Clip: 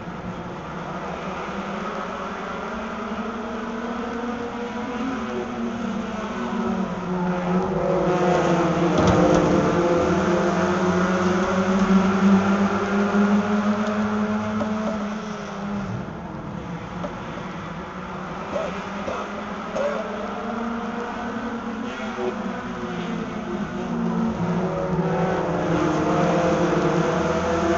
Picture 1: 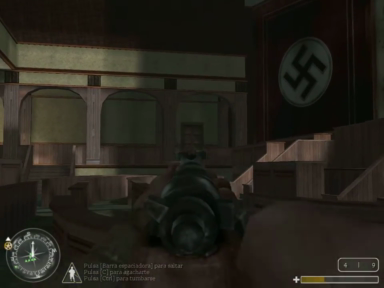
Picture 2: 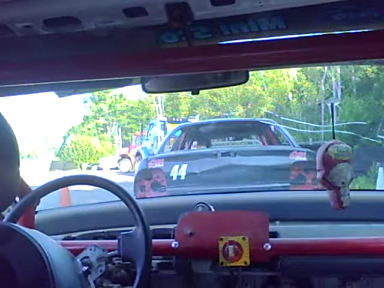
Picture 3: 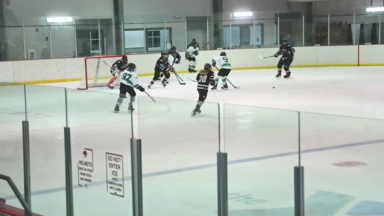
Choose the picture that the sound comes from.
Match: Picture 2